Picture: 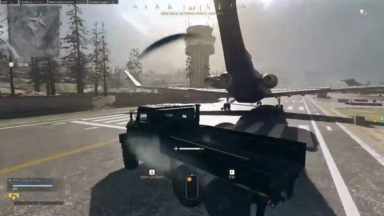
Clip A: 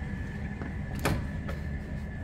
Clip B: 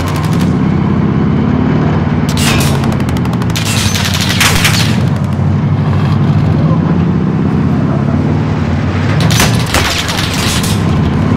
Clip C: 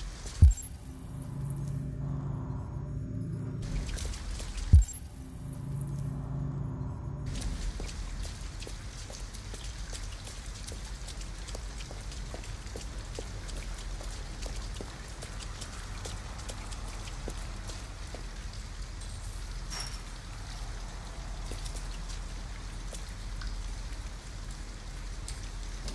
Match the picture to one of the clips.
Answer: B